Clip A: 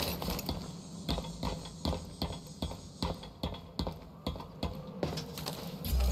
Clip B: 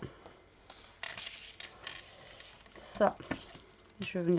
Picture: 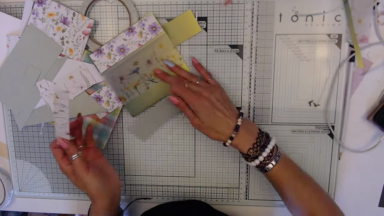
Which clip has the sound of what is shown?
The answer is B